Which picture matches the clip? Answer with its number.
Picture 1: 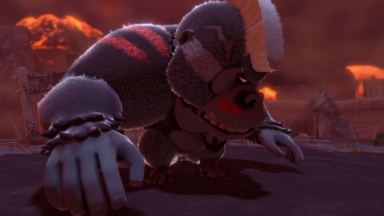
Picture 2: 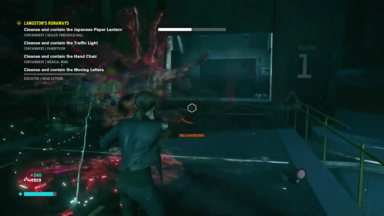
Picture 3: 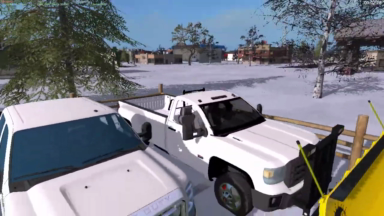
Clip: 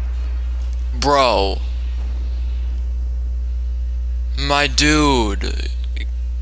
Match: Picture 1